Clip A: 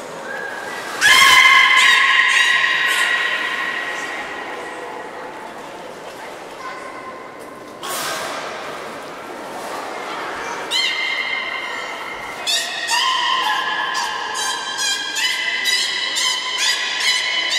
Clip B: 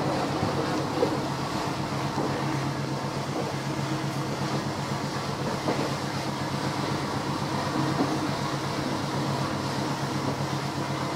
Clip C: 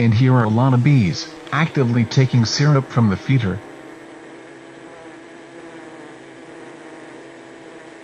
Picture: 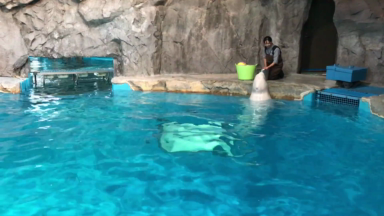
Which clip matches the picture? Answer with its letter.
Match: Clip A